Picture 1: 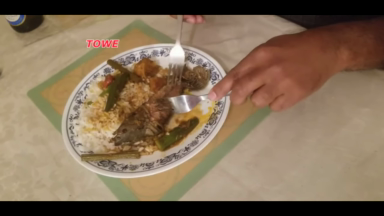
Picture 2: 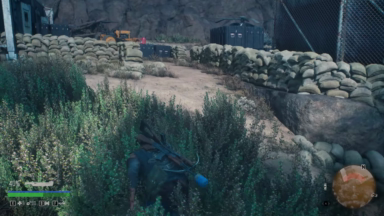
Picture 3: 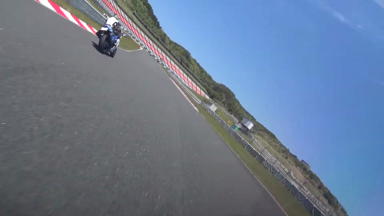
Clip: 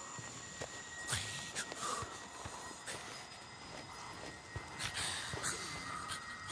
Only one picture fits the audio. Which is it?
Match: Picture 2